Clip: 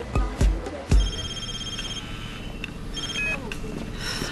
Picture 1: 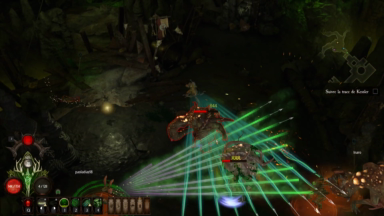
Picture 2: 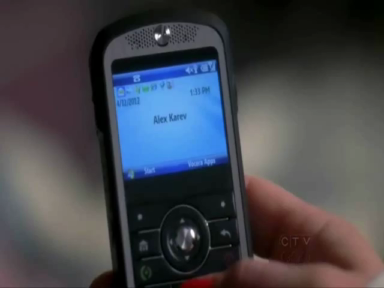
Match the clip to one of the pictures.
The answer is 2